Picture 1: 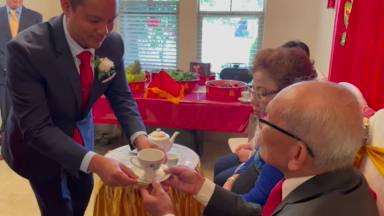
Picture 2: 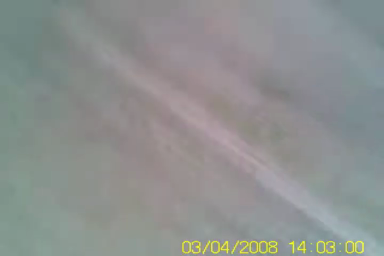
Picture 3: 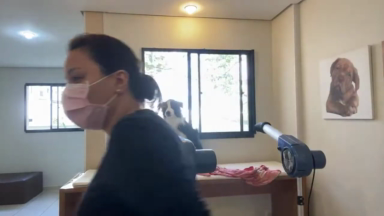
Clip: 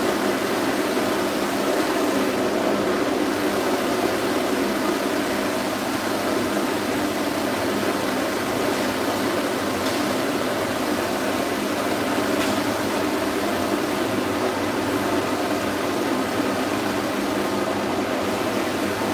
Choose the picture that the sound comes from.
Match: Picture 3